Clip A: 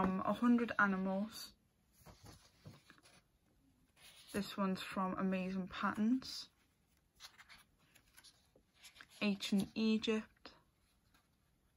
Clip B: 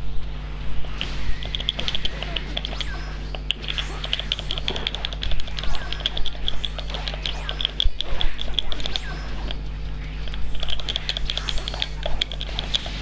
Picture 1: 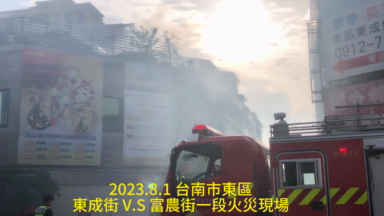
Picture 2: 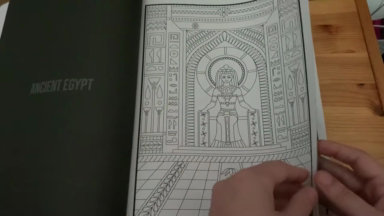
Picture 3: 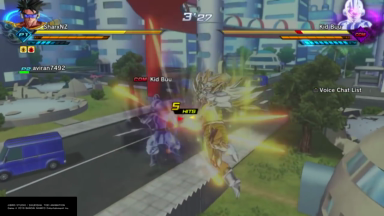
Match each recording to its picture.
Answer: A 2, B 3